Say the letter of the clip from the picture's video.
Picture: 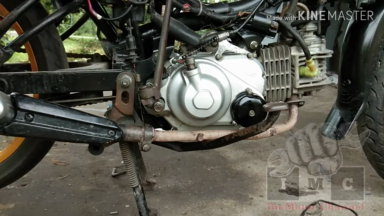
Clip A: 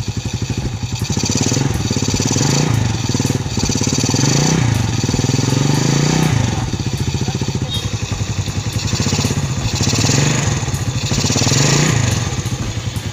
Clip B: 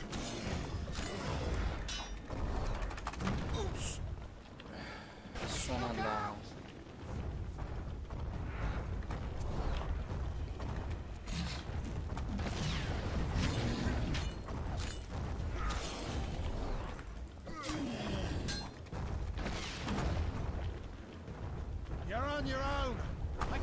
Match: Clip A